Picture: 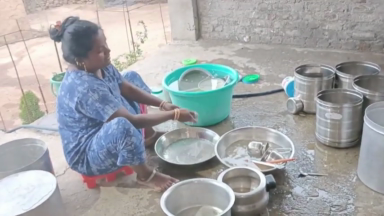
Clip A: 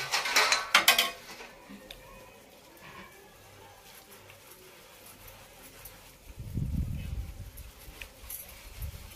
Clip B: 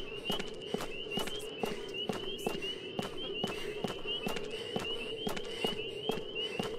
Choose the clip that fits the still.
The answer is A